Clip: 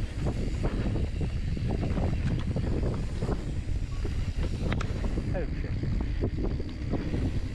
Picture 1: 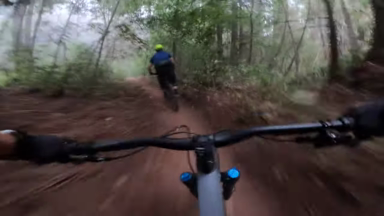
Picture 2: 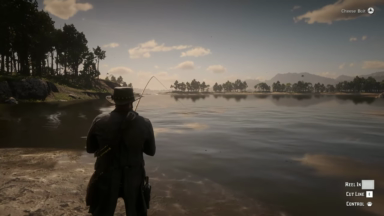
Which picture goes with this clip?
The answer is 1